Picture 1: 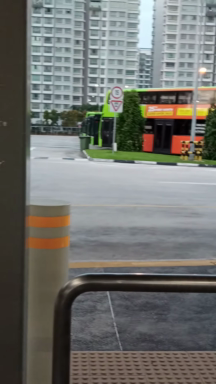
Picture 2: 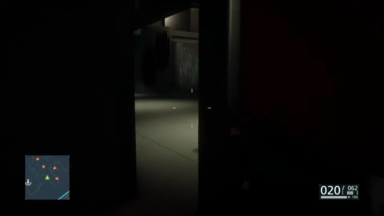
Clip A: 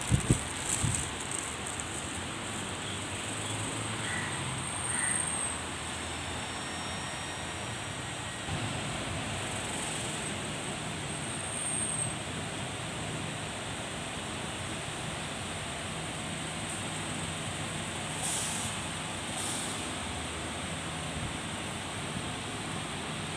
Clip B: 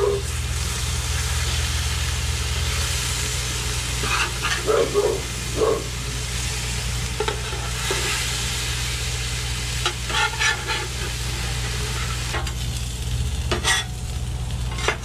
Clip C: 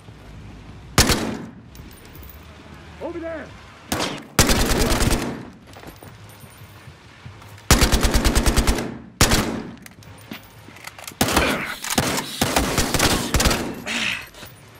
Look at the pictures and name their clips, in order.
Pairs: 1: A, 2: C